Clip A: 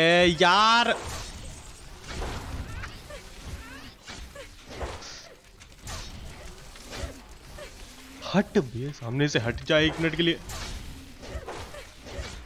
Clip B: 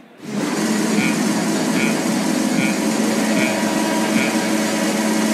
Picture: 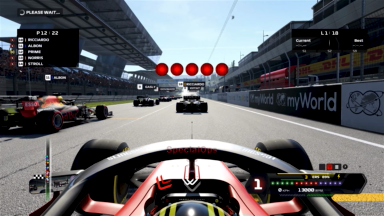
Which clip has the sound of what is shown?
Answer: B